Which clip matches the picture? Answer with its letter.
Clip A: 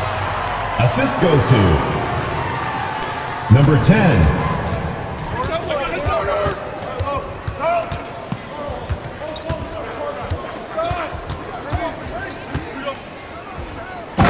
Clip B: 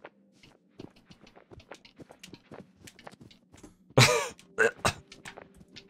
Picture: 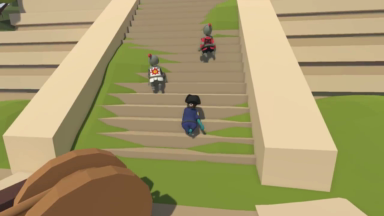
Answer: B